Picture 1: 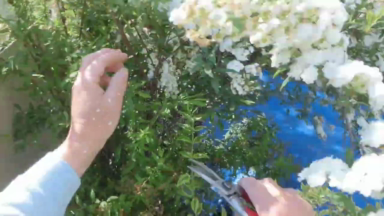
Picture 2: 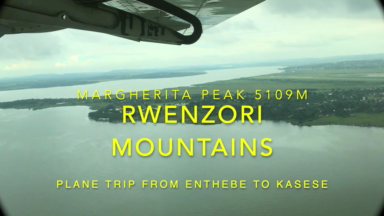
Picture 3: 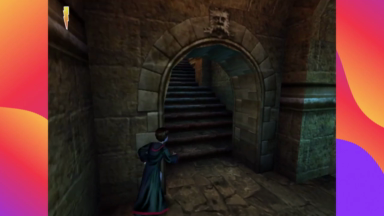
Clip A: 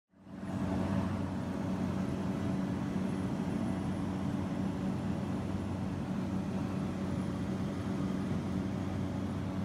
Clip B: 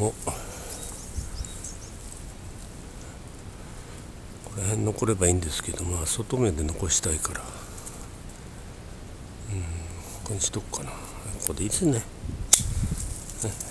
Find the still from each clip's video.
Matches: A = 2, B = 1